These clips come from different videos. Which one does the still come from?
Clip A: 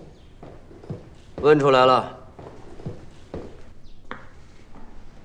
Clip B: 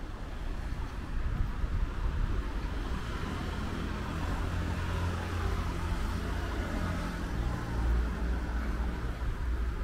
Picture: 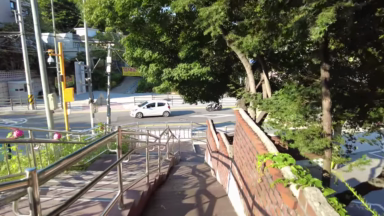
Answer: B